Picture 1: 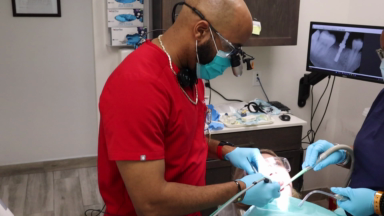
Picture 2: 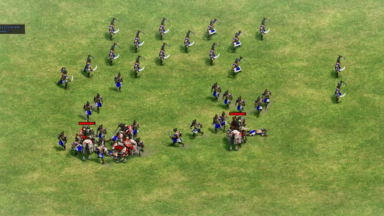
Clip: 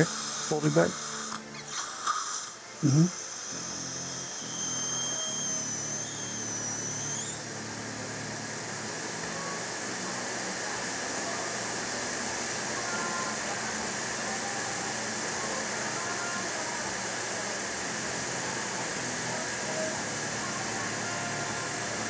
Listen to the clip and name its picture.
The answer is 1